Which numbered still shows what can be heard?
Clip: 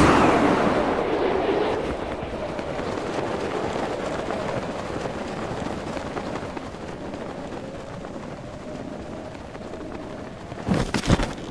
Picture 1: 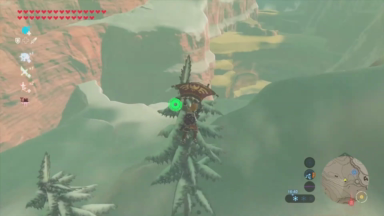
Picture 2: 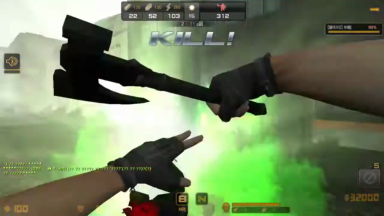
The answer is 1